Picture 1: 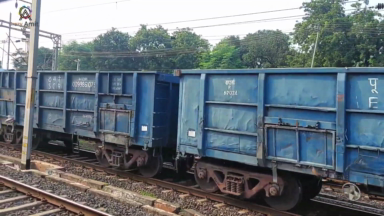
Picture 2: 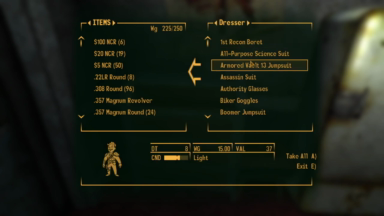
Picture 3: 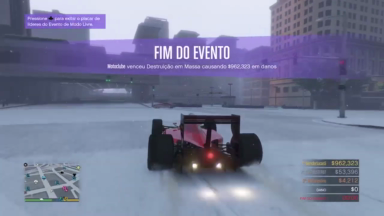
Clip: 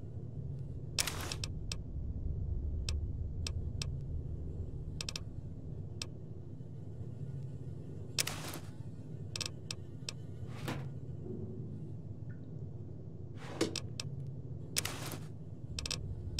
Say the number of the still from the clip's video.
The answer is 2